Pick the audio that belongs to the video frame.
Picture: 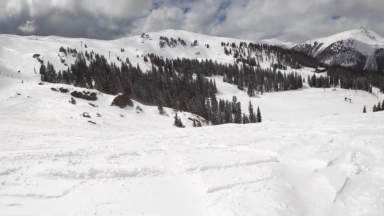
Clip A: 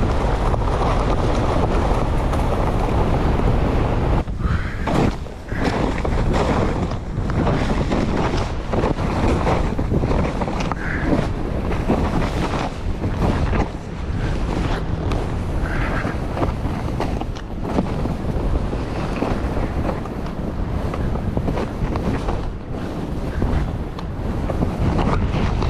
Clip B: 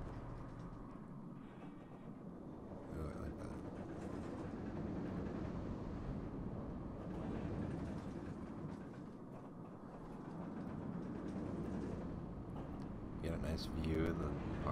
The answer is A